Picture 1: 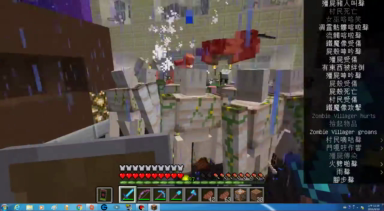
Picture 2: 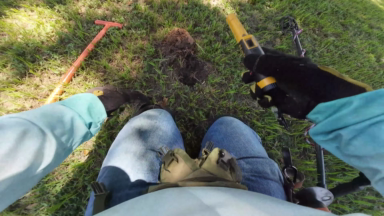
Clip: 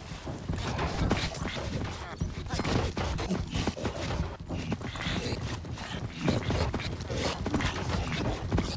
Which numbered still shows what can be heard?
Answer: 1